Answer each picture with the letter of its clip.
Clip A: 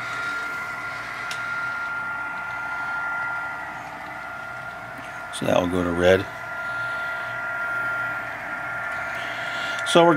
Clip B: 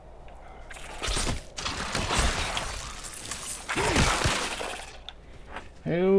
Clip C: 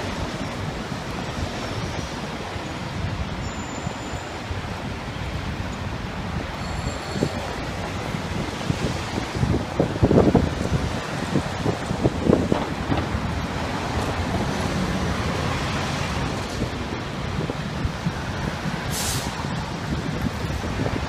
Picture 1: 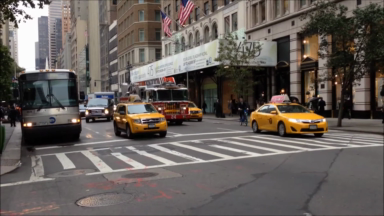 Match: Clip C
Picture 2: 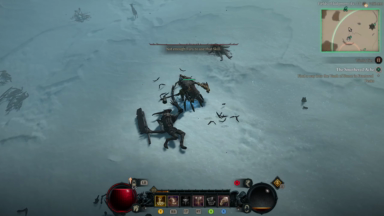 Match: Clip B